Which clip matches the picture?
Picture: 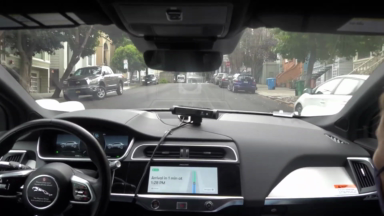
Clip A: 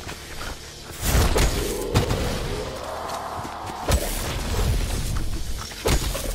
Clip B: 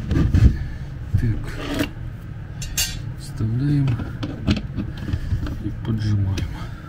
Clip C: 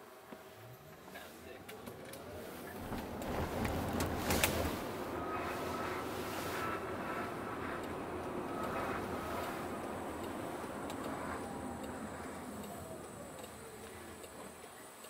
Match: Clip C